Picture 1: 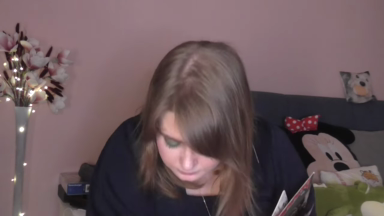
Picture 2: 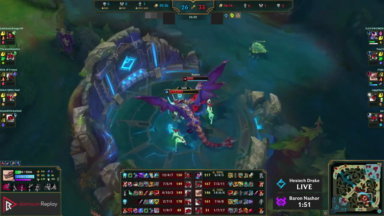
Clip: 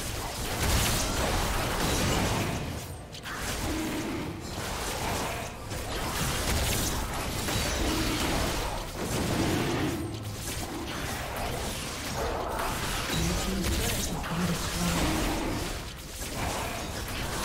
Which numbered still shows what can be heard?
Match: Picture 2